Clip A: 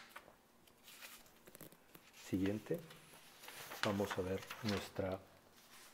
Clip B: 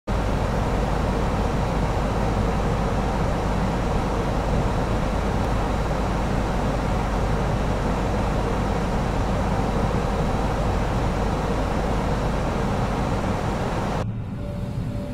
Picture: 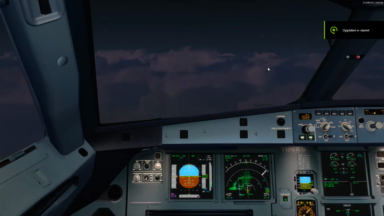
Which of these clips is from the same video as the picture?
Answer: B